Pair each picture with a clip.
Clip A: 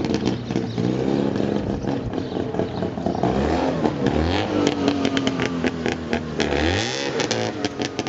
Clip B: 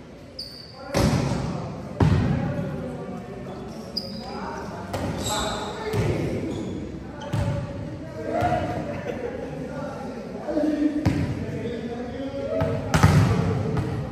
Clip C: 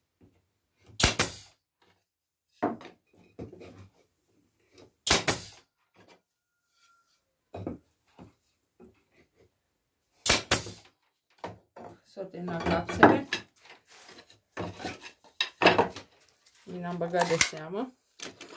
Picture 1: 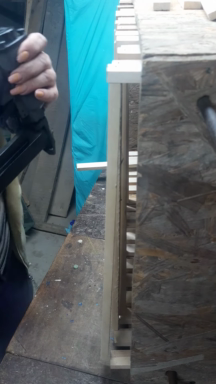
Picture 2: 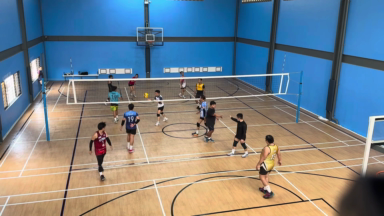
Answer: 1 C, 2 B